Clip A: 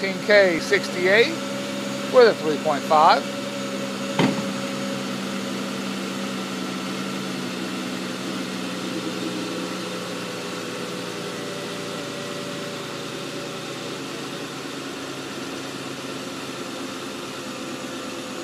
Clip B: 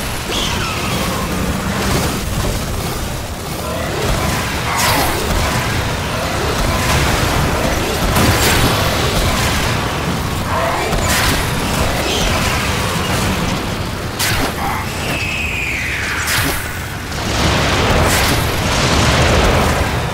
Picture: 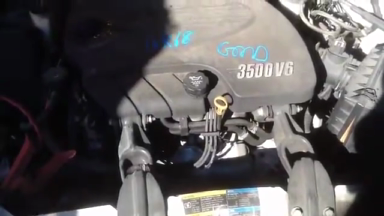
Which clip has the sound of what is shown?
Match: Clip A